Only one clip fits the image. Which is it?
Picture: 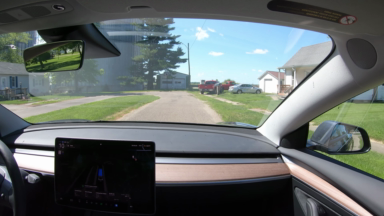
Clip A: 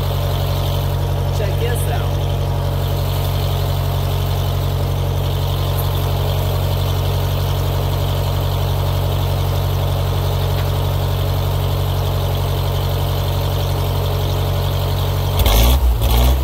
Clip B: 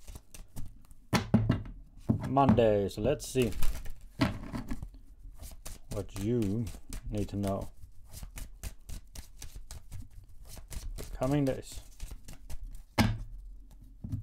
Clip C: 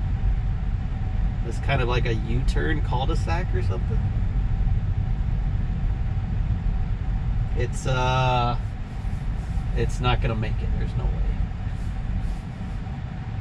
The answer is C